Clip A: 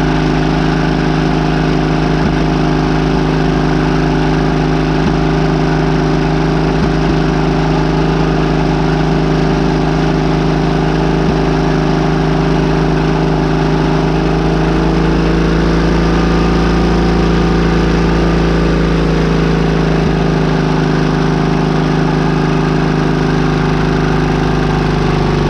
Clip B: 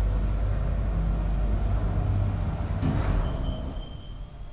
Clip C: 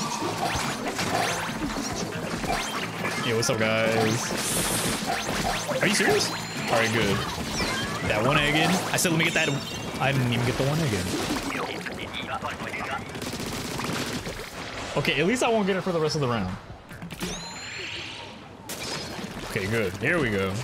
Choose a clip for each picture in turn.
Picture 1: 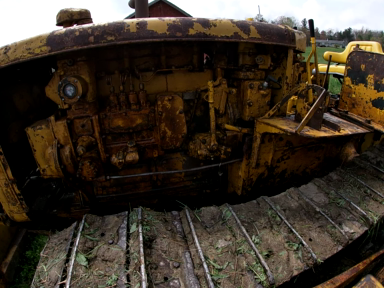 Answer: A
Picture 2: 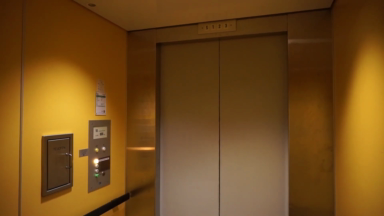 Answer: B